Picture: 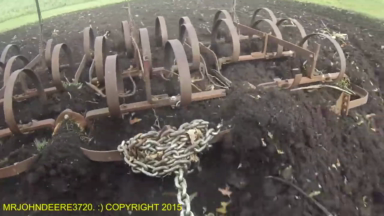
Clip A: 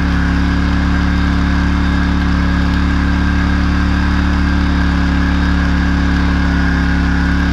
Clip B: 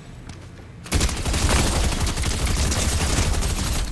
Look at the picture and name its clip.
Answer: A